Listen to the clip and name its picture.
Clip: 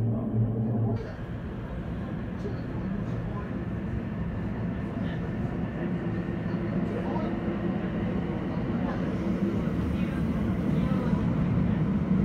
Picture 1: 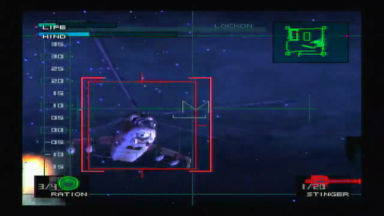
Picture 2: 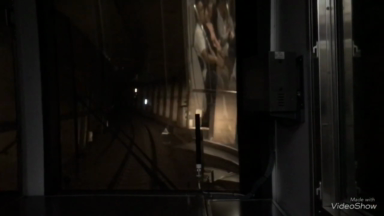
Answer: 2